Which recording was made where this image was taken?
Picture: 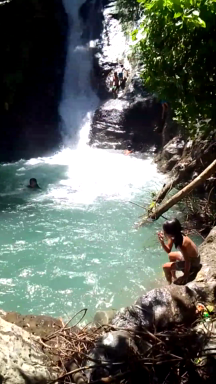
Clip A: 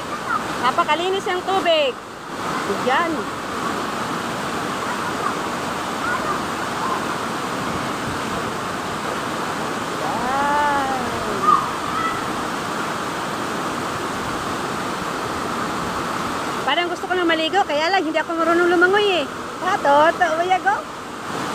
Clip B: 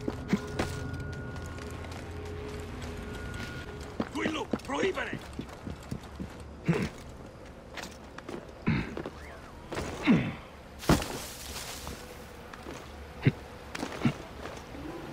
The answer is A